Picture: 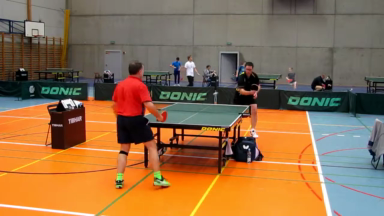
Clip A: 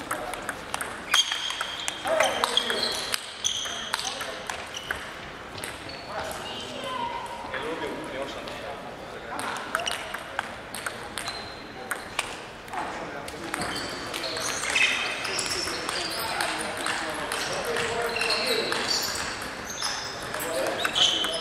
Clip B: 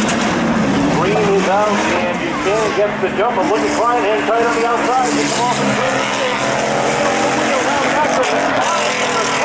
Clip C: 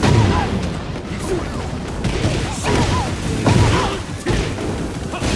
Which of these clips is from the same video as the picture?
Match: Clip A